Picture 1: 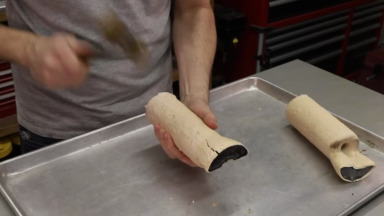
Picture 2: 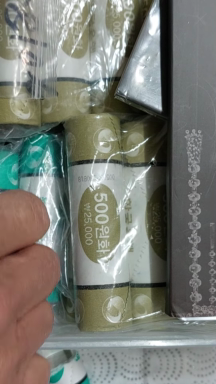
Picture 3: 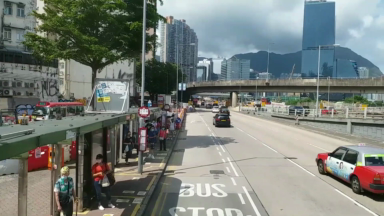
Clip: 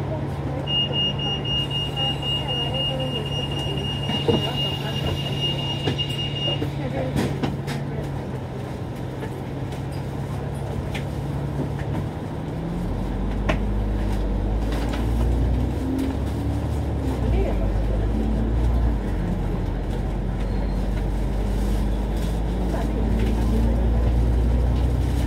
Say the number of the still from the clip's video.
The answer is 3